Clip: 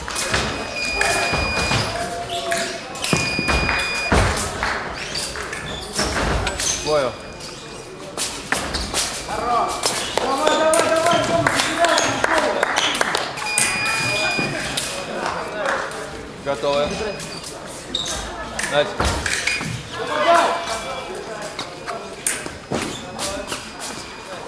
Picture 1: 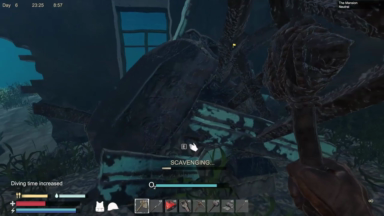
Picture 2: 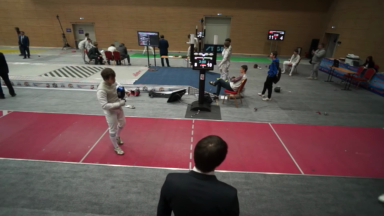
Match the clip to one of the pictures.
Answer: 2